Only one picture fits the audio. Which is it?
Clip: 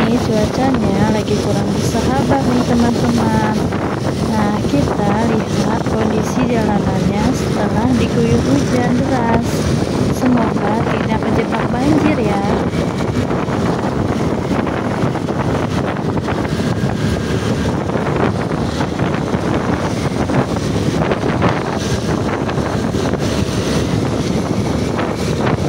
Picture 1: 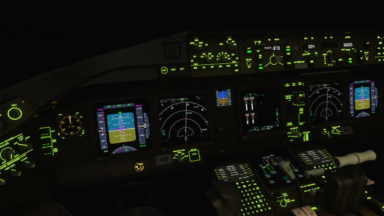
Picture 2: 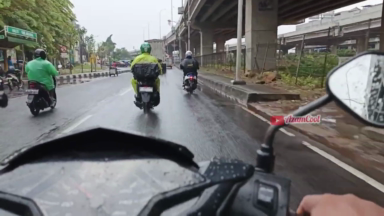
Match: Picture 2